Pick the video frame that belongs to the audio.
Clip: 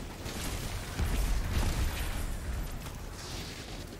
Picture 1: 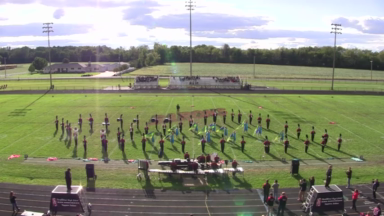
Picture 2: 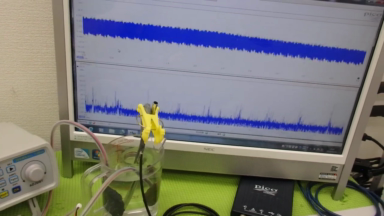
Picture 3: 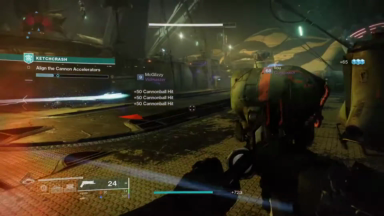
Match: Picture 3